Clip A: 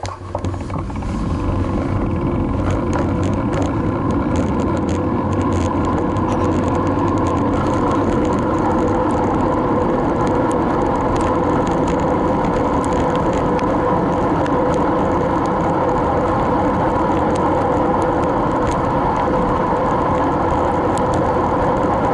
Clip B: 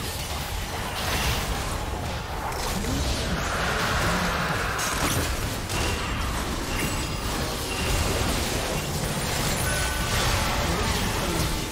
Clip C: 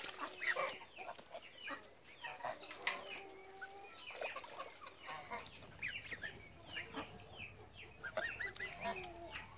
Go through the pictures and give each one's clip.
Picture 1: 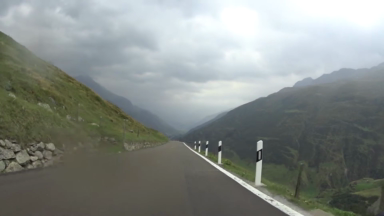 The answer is A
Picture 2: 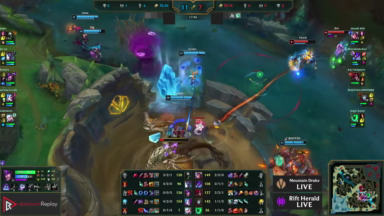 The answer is B